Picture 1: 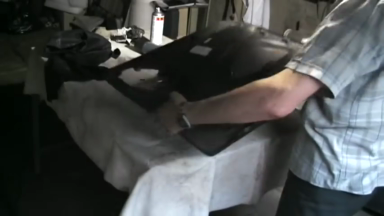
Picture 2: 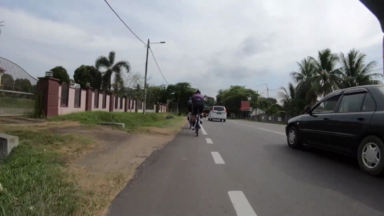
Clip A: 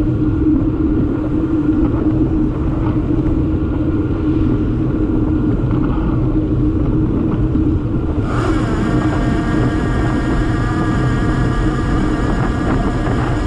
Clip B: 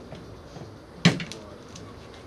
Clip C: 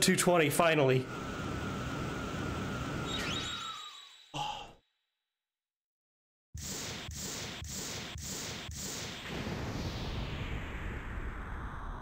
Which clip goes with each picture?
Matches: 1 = B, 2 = A